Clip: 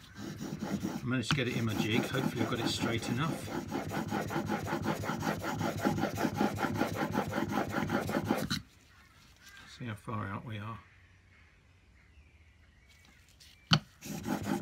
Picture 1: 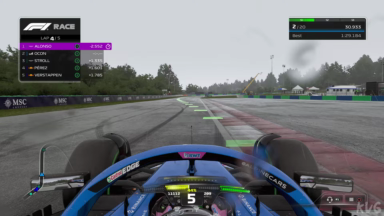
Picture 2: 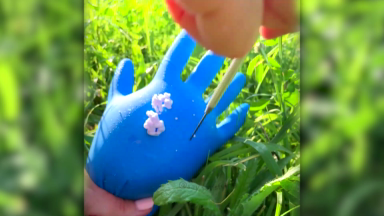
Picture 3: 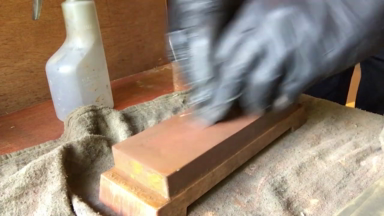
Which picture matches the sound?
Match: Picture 3